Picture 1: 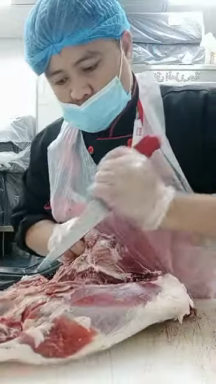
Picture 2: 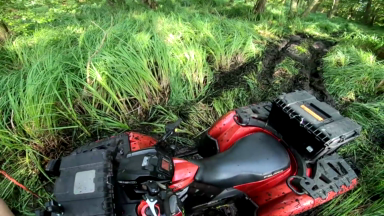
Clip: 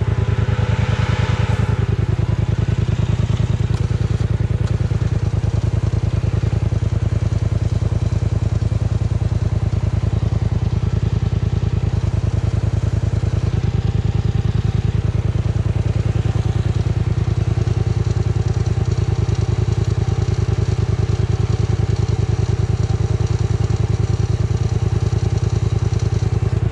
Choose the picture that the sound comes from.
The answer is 2